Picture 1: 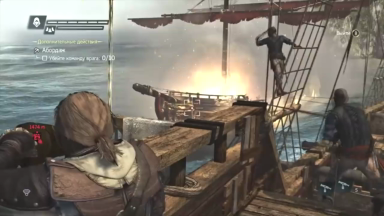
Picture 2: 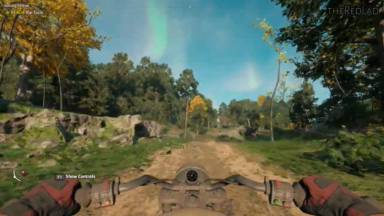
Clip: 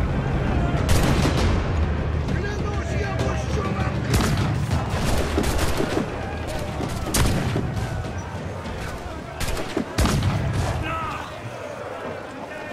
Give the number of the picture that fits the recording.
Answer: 1